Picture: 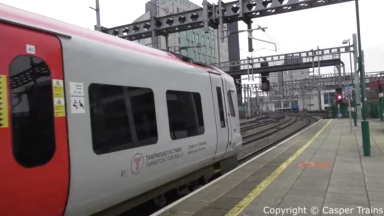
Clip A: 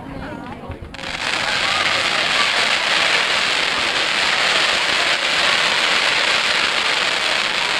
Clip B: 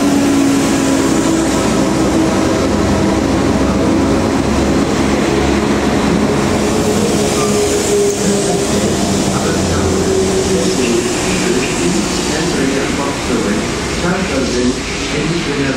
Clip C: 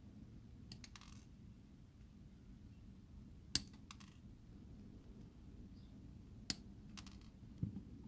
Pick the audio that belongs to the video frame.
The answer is B